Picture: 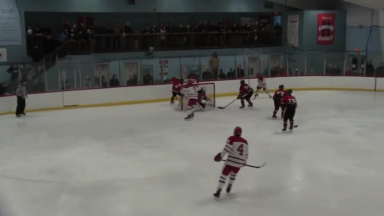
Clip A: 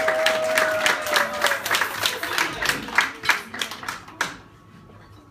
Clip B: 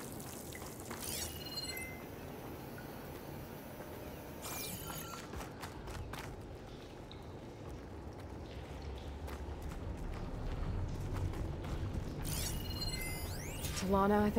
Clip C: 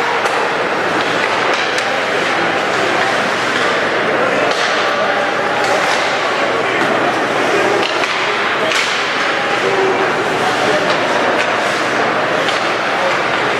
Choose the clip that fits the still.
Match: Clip C